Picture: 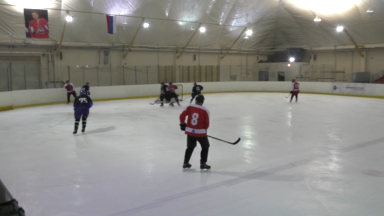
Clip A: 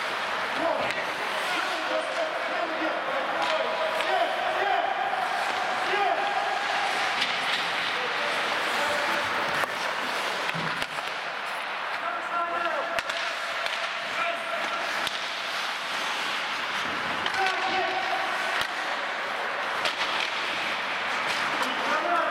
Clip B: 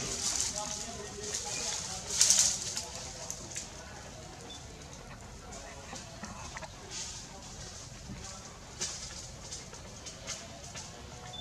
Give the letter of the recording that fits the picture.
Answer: A